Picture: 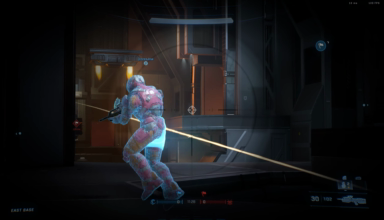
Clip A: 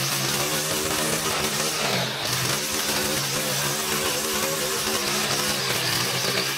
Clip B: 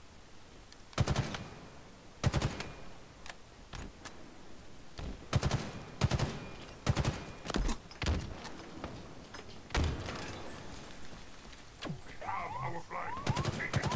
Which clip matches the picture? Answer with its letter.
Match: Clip B